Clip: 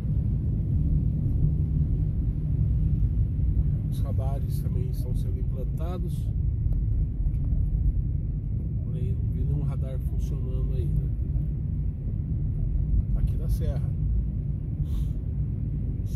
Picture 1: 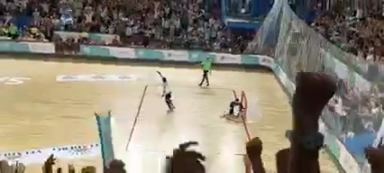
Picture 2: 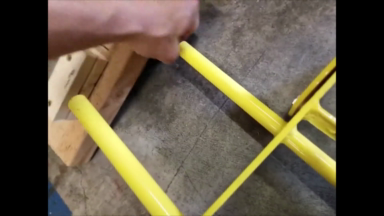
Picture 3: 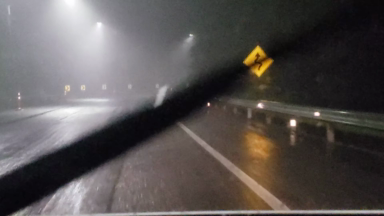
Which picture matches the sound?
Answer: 3